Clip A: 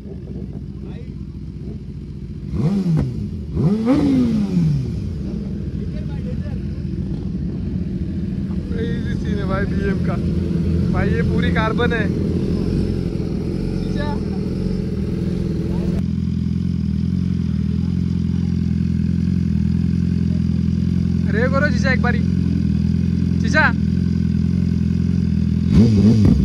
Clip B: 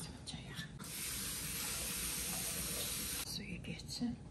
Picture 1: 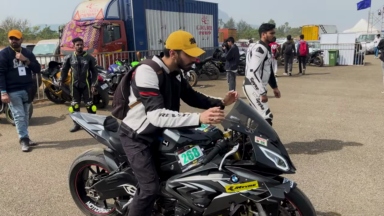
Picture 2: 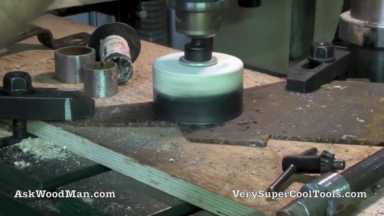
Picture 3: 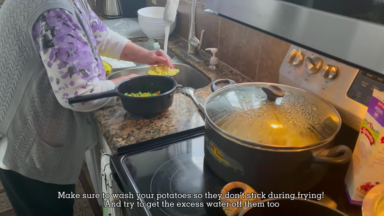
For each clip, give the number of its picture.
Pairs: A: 1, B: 3